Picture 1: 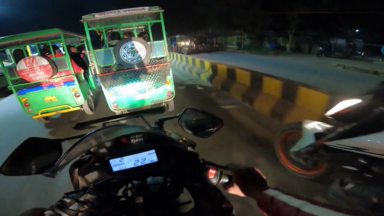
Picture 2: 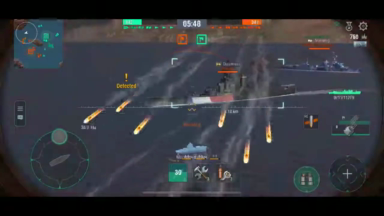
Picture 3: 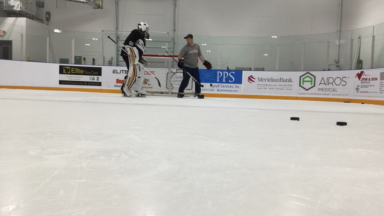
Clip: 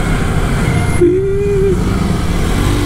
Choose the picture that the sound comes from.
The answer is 1